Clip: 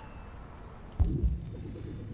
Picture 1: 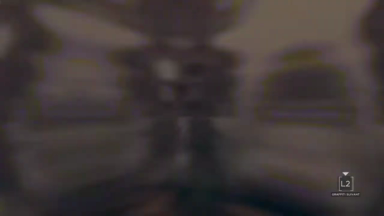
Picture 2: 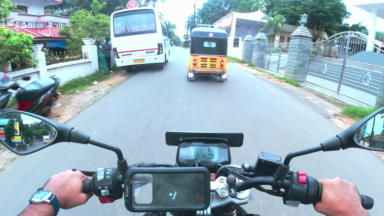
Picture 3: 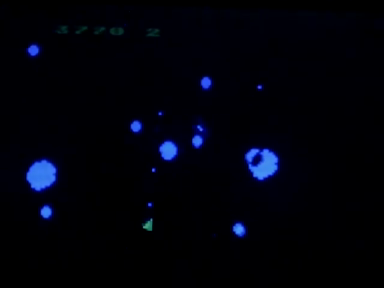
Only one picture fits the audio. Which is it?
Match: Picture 1